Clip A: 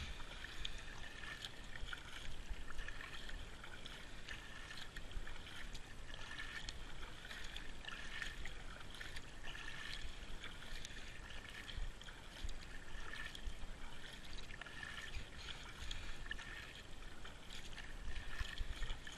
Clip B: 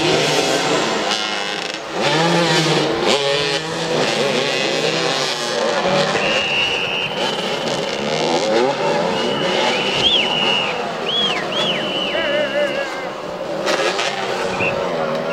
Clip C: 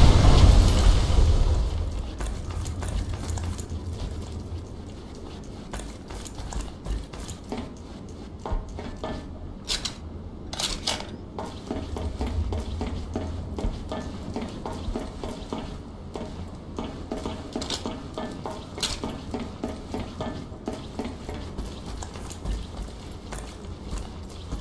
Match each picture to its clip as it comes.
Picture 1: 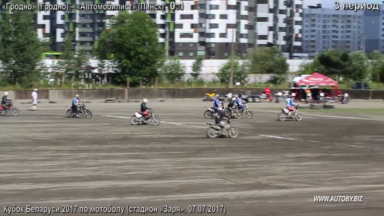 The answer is B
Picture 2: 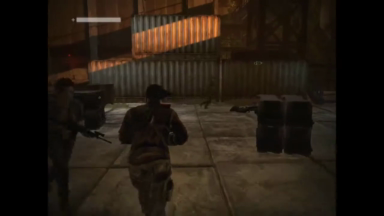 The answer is C